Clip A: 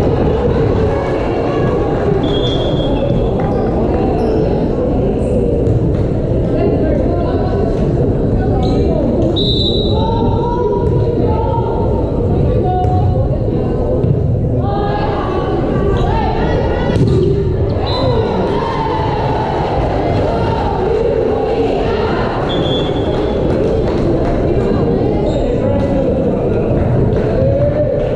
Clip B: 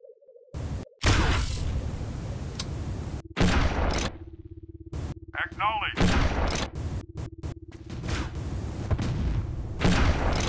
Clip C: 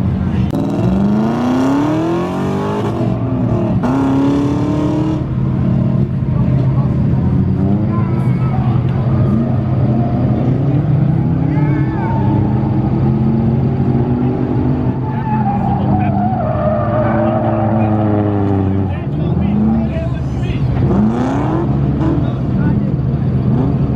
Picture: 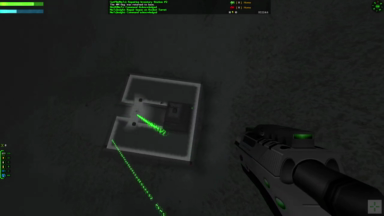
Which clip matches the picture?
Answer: B